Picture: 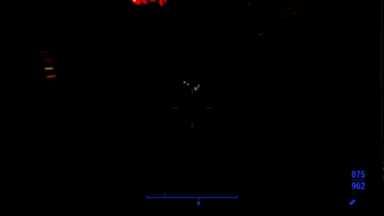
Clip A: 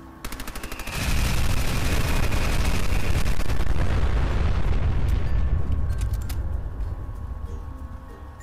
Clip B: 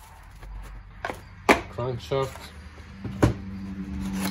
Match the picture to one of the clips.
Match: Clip A